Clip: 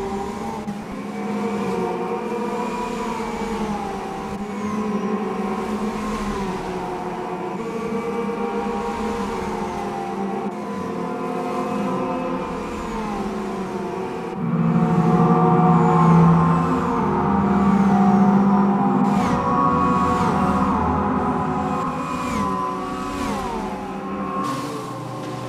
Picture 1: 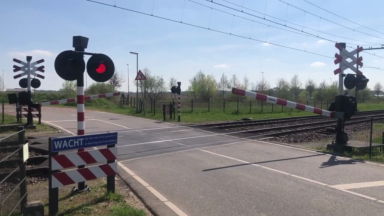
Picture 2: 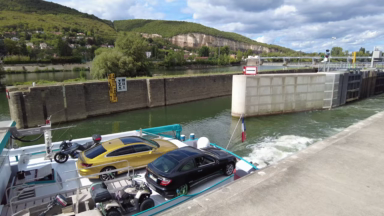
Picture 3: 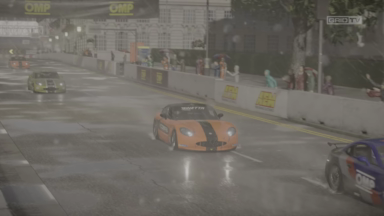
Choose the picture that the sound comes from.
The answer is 3